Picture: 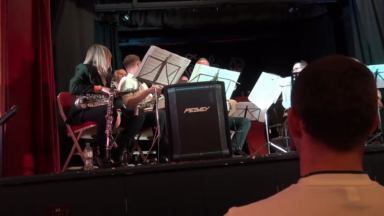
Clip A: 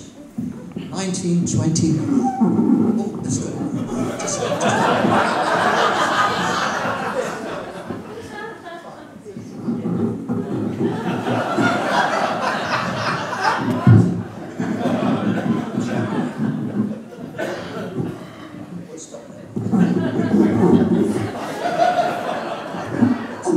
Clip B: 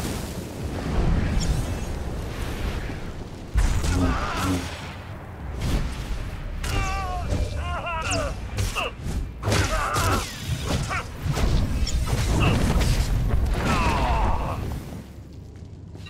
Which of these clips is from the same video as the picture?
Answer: A